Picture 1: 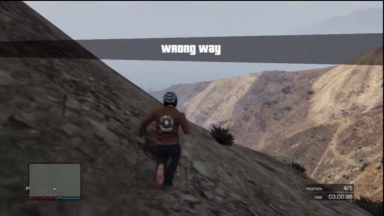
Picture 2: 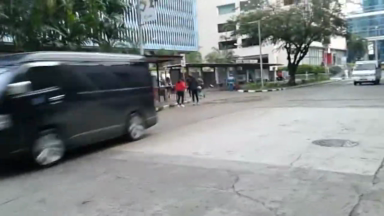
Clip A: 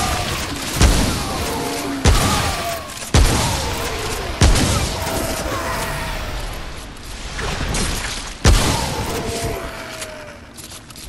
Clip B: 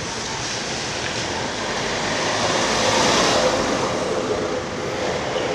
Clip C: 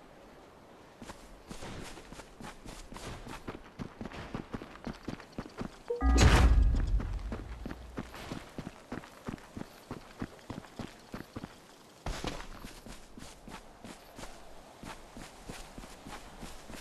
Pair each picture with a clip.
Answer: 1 C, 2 B